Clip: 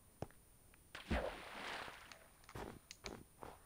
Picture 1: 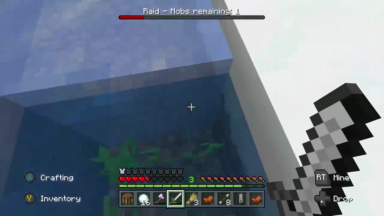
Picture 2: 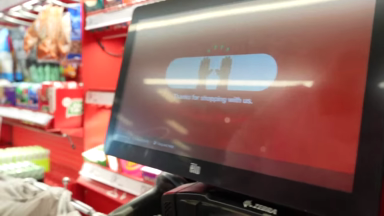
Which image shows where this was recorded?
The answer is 1